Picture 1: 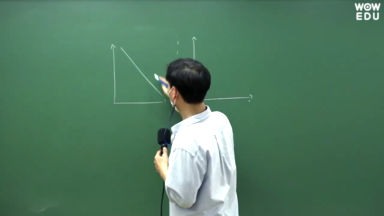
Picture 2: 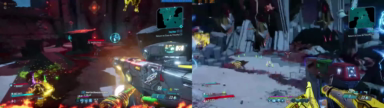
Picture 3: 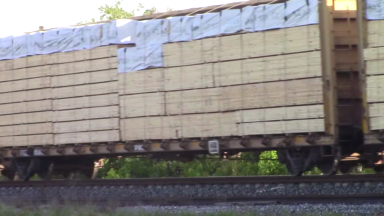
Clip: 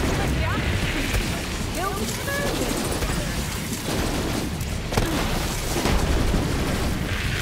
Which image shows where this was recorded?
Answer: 2